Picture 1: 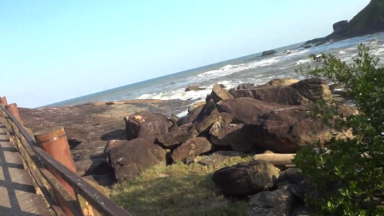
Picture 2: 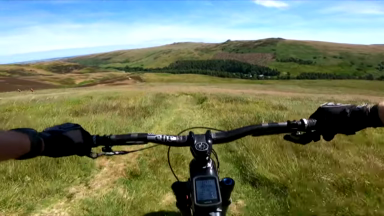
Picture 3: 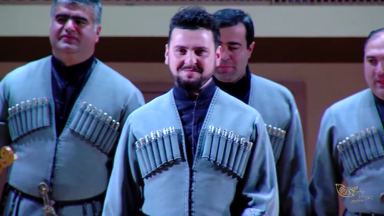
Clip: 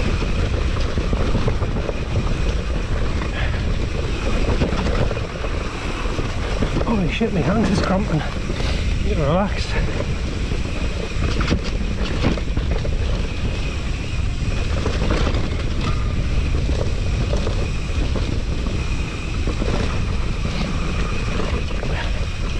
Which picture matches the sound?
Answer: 2